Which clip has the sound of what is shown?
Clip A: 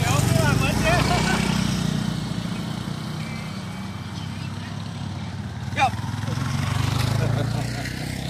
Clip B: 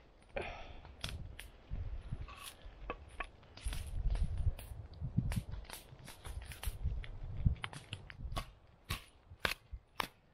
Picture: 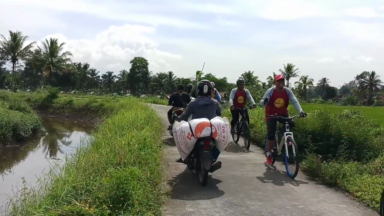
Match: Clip A